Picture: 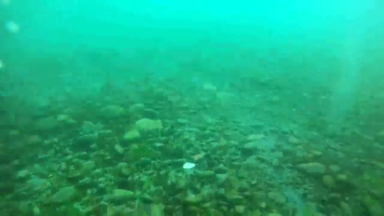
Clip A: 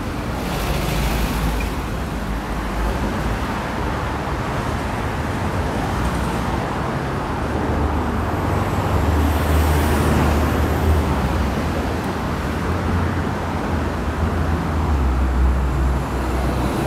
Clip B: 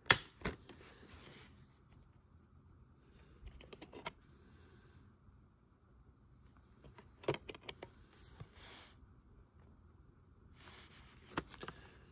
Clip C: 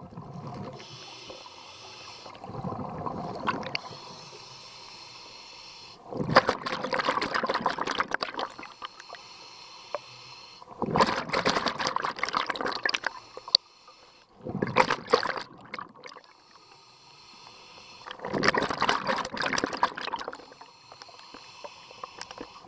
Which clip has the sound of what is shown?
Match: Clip C